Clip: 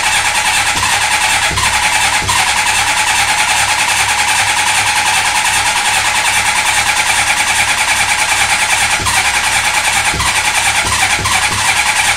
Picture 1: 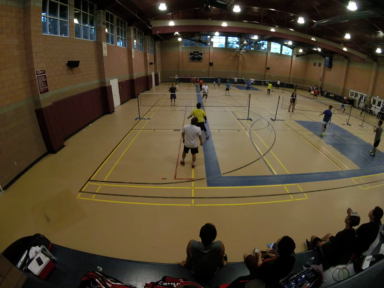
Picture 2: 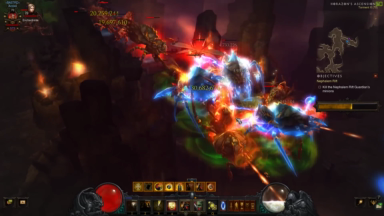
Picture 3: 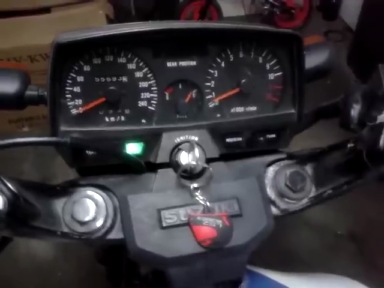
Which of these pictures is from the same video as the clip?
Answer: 3